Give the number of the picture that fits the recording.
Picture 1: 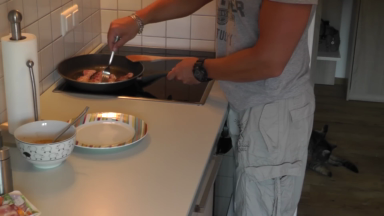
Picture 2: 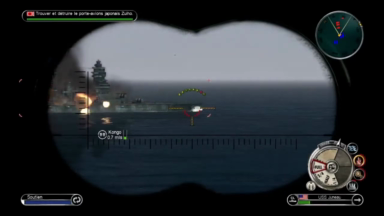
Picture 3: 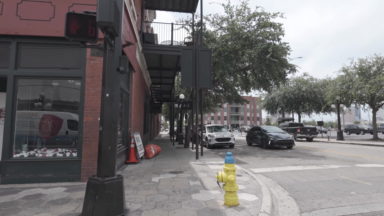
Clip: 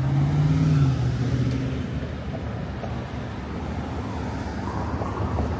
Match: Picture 3